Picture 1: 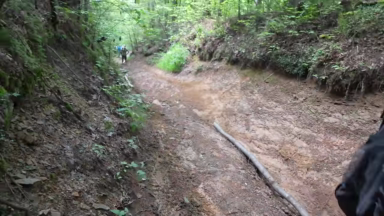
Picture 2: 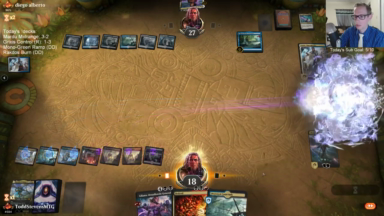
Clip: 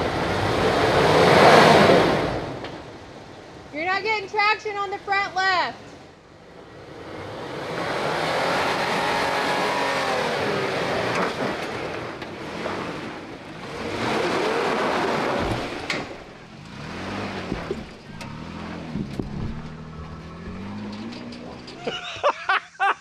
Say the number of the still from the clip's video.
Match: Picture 1